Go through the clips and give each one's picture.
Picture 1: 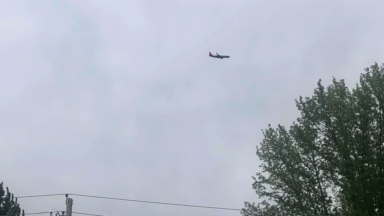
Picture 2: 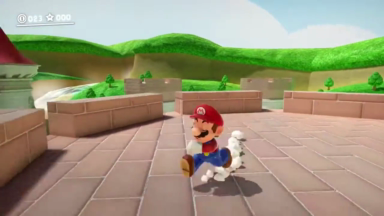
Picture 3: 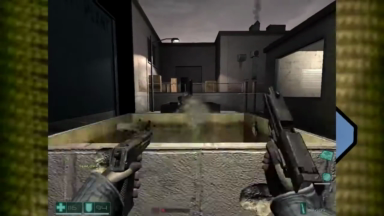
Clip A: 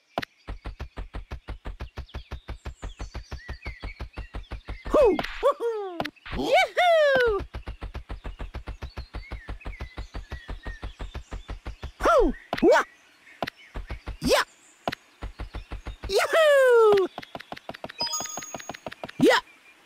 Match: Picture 2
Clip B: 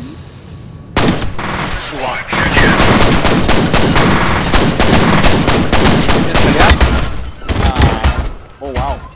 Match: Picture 3